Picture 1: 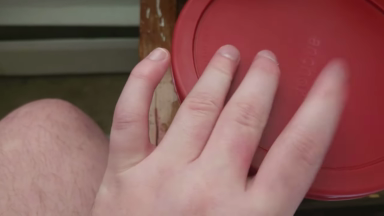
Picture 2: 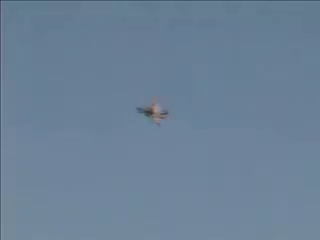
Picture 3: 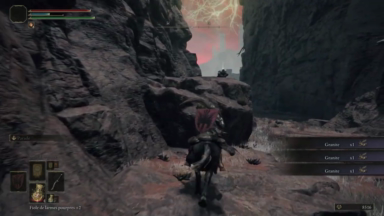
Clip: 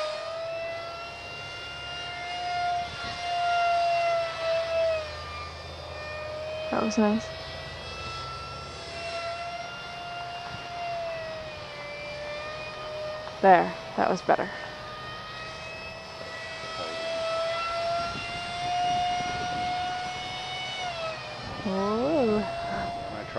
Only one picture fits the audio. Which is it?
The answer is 2